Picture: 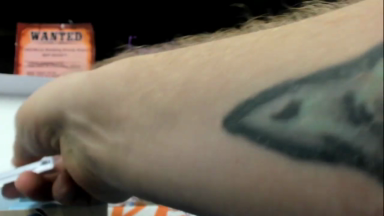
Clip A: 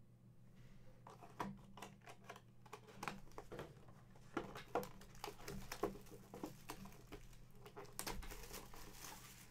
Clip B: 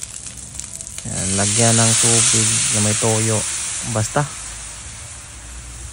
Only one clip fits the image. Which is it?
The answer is A